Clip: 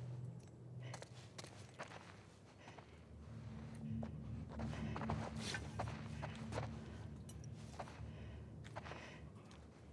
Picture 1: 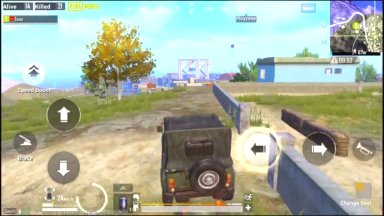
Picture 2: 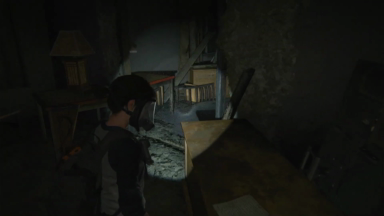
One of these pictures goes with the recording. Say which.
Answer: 2